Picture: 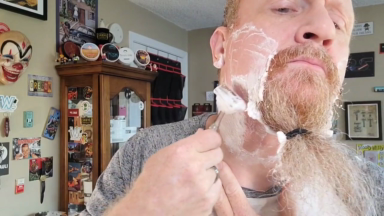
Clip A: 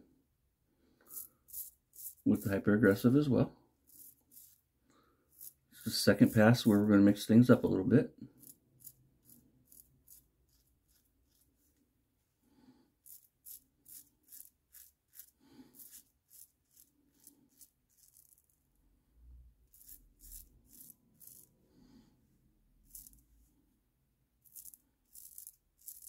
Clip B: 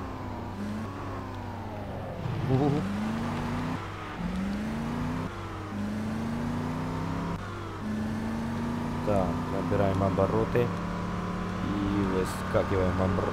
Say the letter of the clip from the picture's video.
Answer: A